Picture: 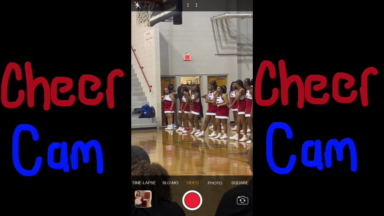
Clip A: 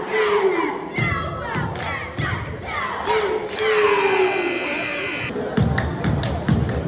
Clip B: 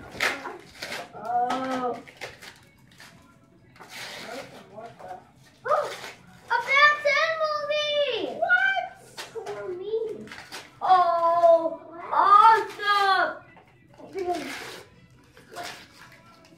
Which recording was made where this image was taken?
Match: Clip A